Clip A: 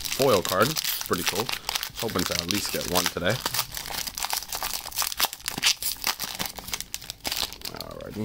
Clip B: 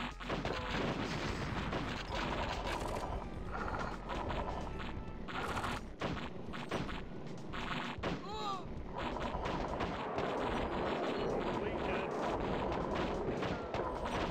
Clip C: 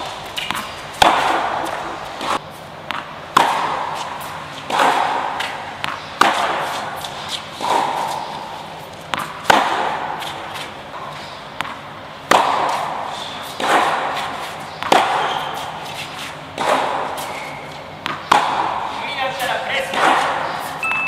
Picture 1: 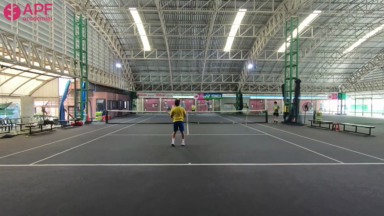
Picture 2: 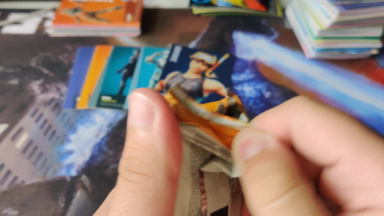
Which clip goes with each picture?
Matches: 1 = C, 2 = A